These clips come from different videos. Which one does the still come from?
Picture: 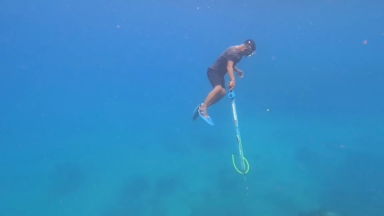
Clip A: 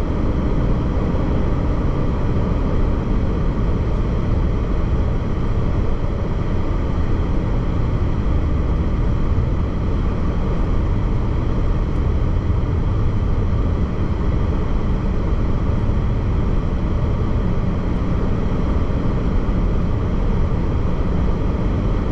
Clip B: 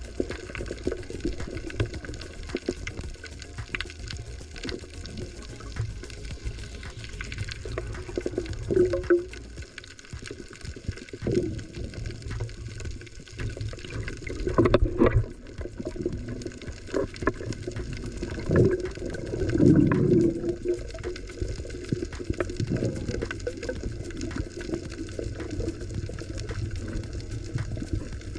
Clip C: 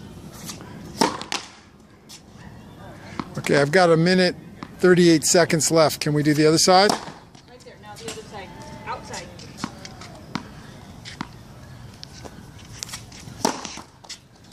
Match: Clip B